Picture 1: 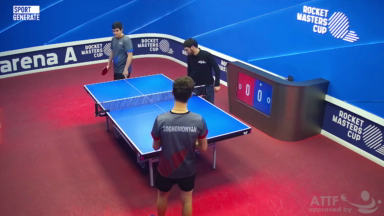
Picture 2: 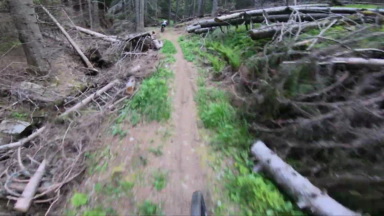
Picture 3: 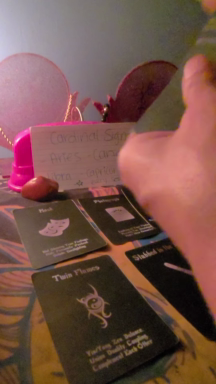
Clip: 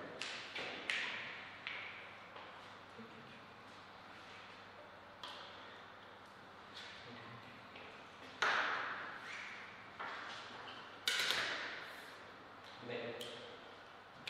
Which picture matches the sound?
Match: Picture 1